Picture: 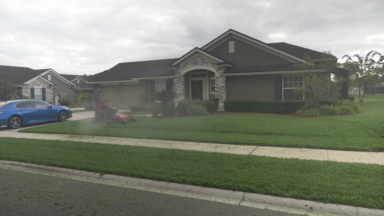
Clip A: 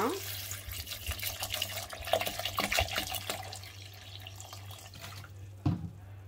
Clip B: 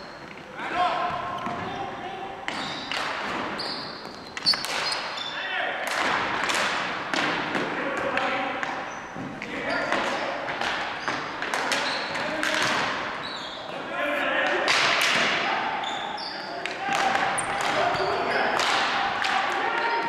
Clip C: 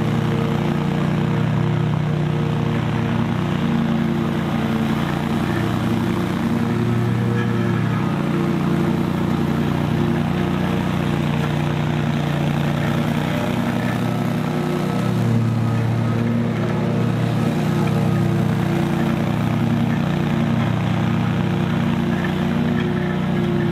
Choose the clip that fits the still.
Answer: C